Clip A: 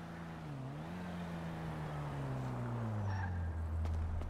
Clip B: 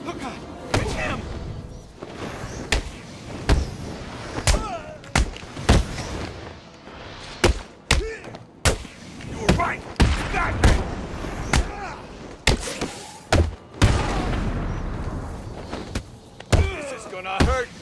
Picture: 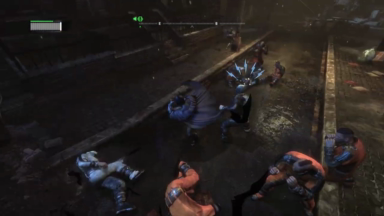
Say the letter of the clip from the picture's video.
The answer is B